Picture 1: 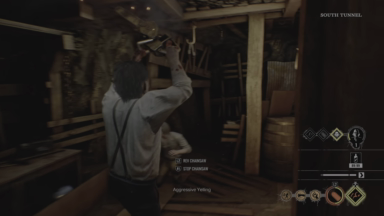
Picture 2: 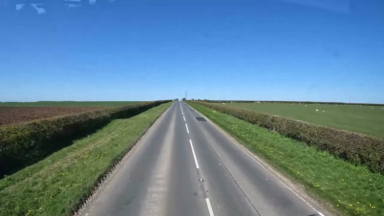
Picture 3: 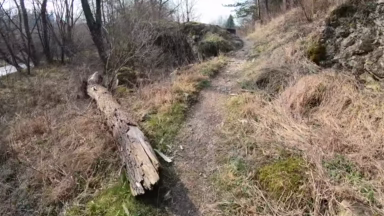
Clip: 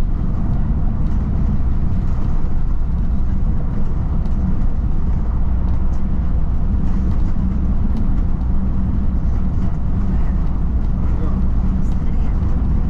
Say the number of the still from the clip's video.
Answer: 2